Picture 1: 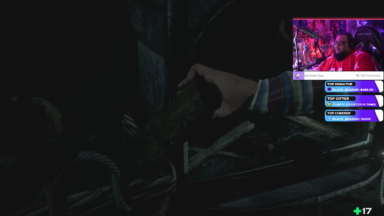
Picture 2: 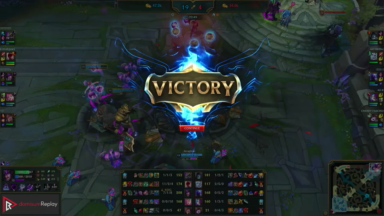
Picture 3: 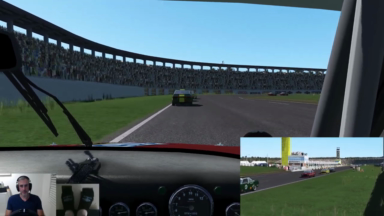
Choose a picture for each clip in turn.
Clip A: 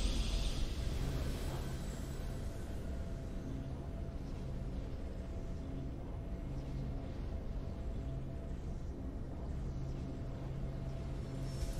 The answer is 2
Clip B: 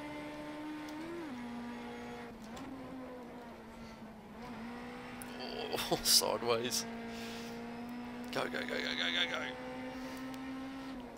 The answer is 3